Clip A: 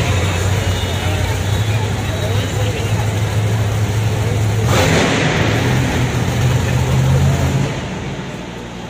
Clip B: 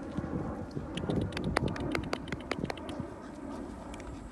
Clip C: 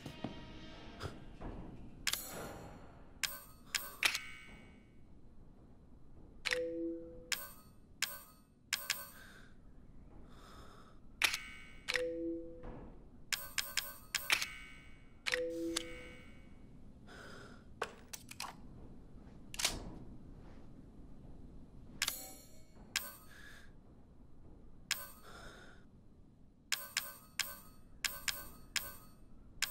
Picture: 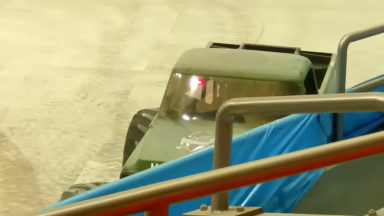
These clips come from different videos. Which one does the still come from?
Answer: A